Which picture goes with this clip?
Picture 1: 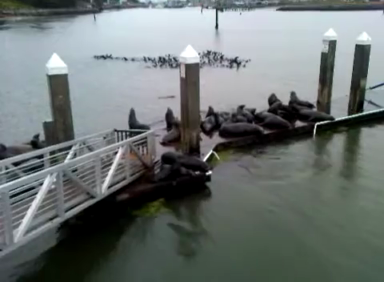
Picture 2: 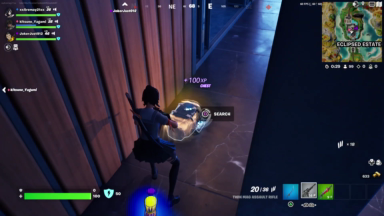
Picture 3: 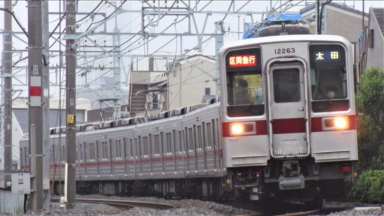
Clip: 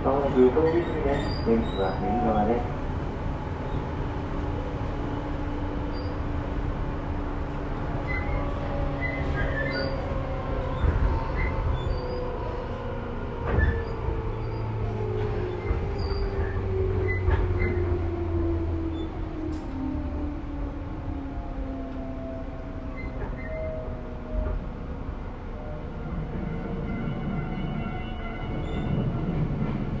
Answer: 3